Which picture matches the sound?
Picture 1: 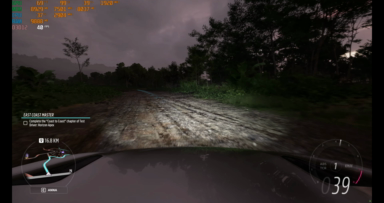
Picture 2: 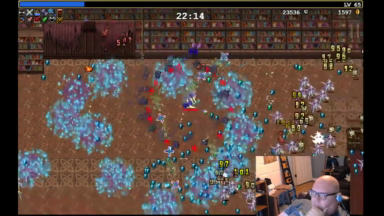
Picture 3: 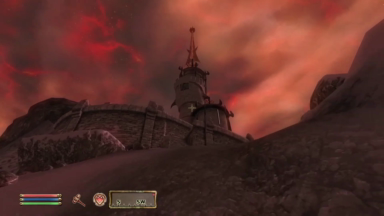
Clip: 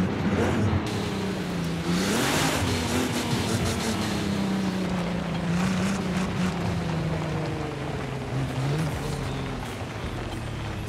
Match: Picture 1